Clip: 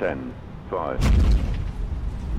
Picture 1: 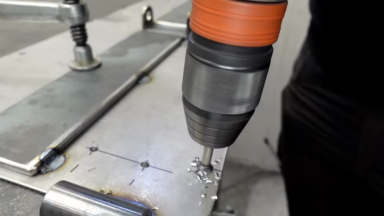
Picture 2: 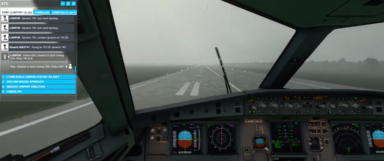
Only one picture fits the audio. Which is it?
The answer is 2